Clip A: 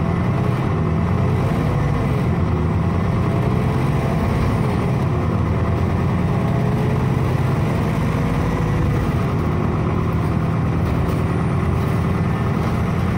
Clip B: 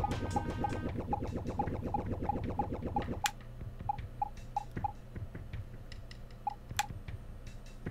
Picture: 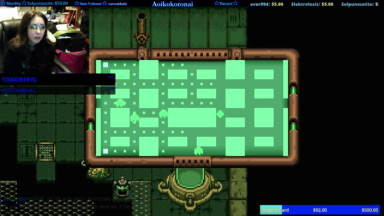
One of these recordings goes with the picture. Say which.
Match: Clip B